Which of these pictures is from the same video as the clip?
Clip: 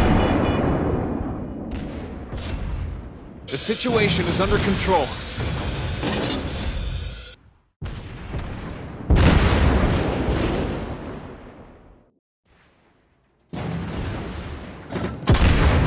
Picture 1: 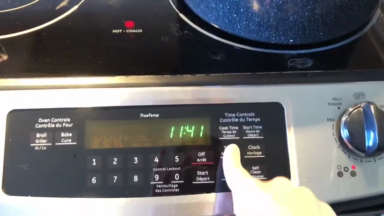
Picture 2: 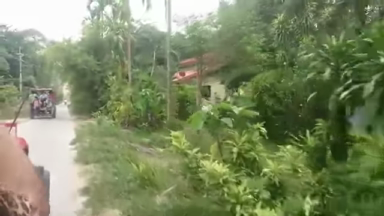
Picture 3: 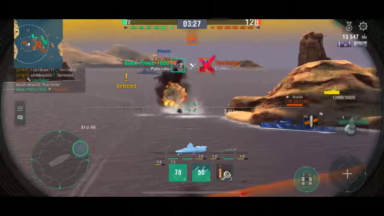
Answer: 3